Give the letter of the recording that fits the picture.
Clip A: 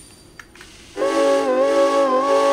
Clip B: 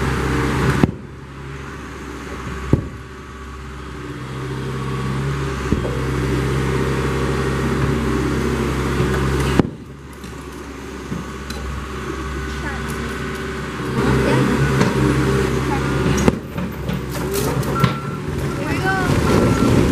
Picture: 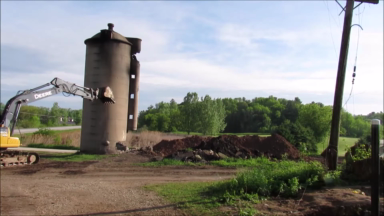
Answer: B